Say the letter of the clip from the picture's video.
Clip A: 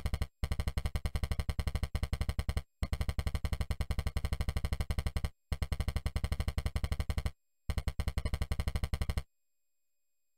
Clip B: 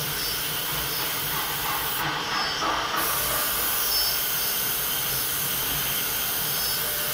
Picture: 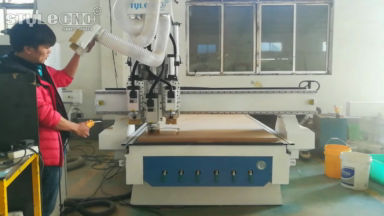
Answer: B